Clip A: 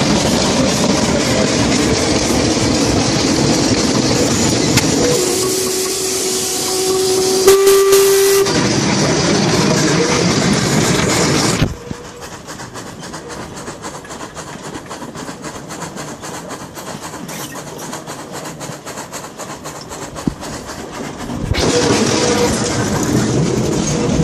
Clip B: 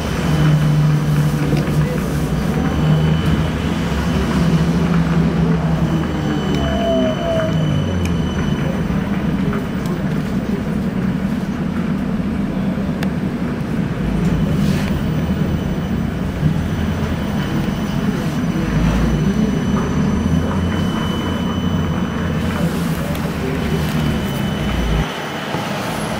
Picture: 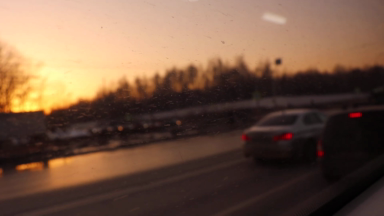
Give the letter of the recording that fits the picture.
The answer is B